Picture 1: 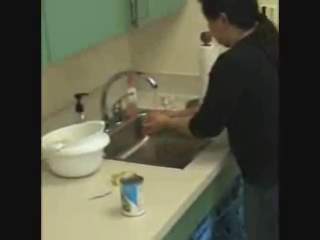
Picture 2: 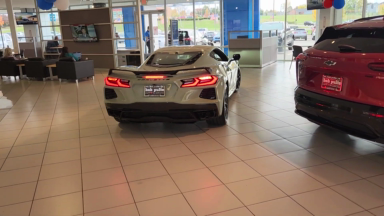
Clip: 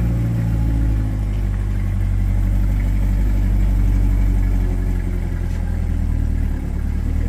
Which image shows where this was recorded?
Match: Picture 2